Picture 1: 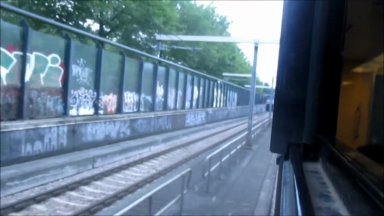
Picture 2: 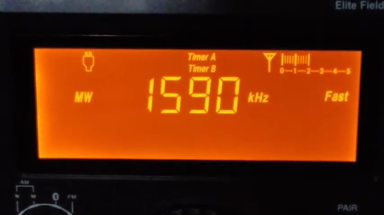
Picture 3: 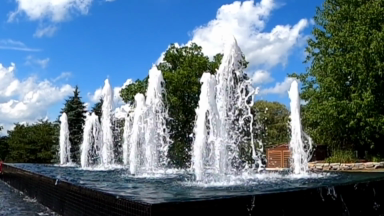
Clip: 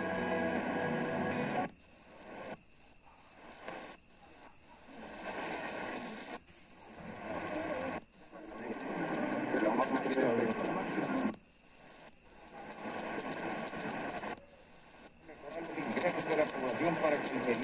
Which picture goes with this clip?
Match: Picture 2